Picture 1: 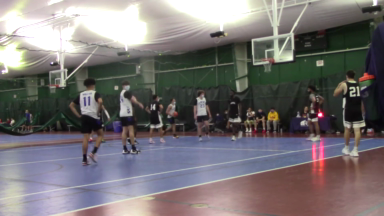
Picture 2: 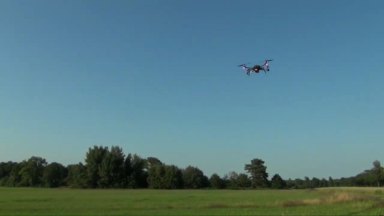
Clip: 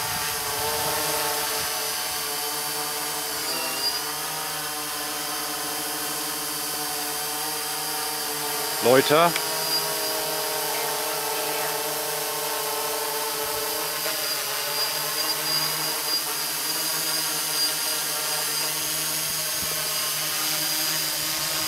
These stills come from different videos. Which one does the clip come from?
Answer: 2